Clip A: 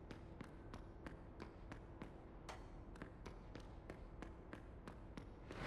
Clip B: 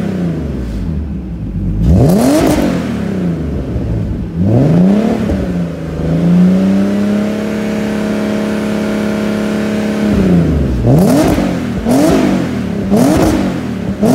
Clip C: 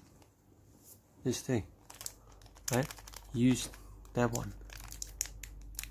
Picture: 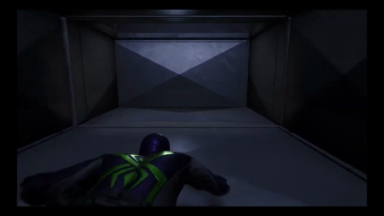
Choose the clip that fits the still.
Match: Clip A